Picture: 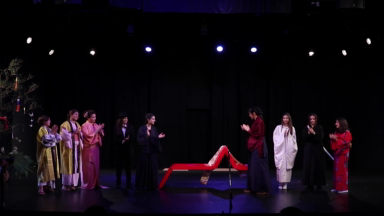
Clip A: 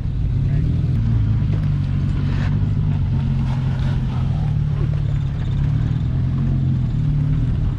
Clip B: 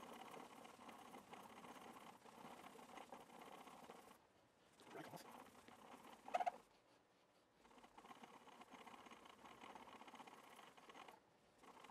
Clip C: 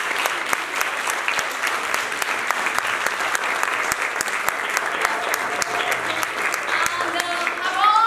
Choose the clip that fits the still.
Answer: C